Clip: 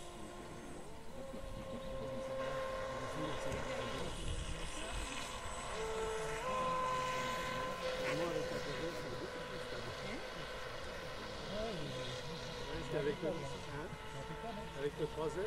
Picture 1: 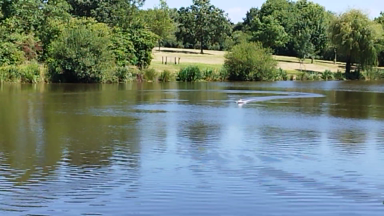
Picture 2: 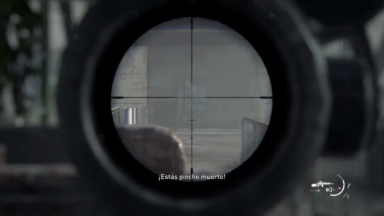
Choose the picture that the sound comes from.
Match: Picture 1